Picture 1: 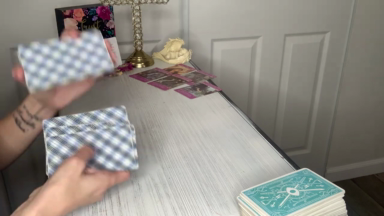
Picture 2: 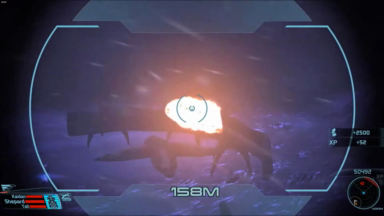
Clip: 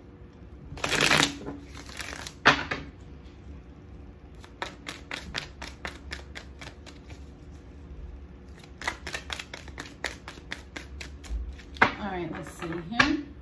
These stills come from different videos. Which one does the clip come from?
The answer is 1